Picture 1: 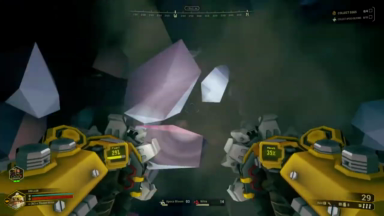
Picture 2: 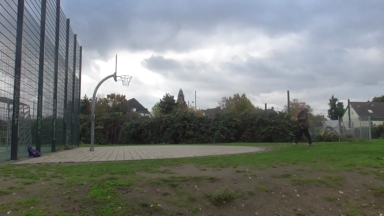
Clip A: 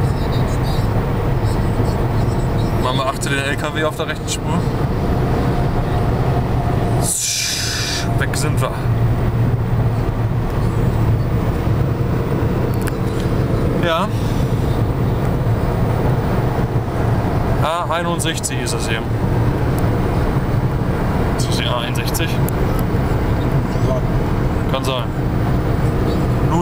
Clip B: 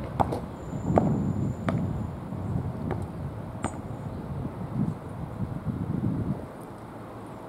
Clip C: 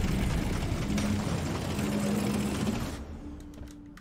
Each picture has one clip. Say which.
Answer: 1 C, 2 B